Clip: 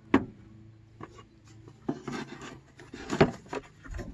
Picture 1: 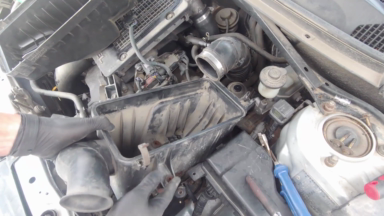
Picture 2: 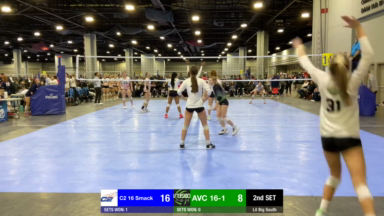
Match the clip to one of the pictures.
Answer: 1